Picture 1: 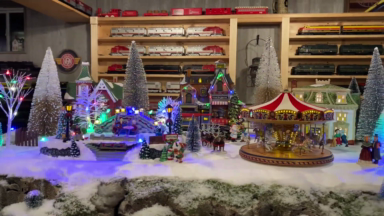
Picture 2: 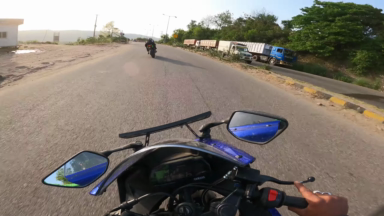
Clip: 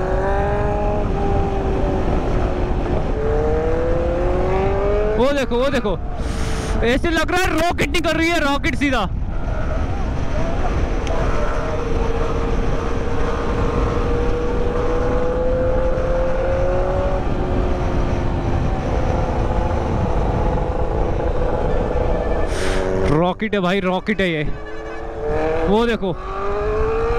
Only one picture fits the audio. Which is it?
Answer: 2